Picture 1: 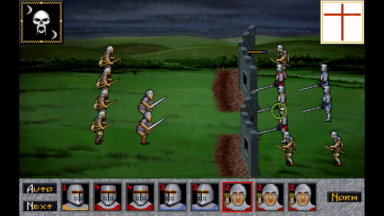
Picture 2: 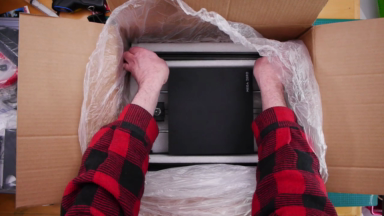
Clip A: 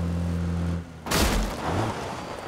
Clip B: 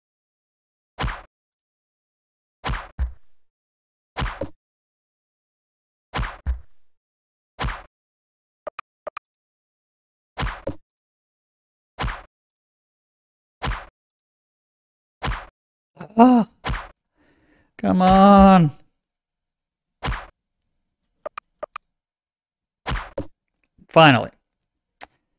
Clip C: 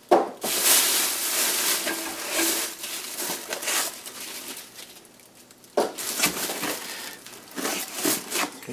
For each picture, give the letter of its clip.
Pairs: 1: B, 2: C